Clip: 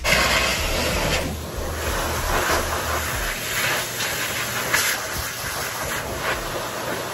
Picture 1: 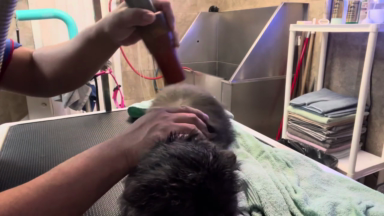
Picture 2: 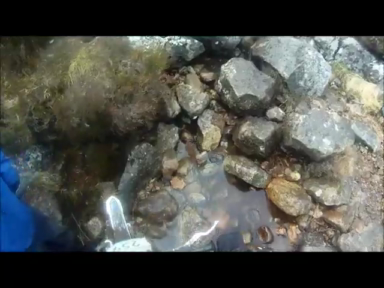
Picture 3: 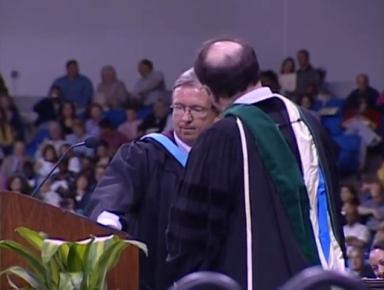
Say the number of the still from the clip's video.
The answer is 1